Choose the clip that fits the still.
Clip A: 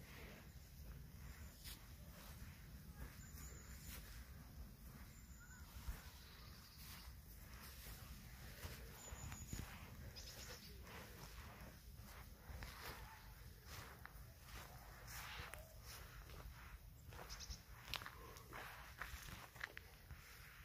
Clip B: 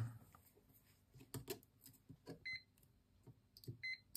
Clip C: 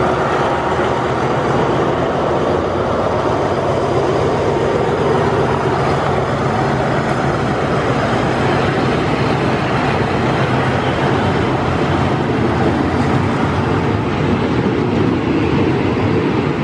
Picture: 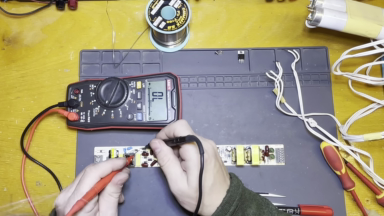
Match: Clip B